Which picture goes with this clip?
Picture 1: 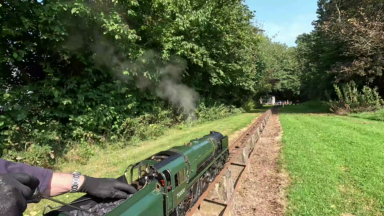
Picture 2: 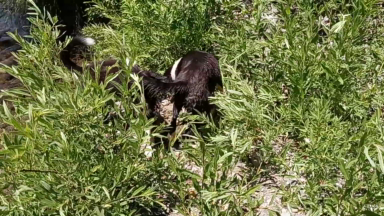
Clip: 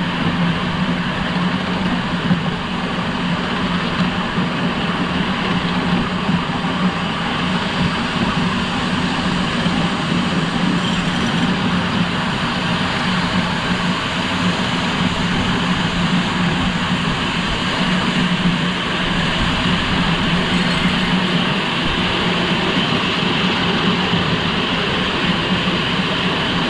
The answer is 1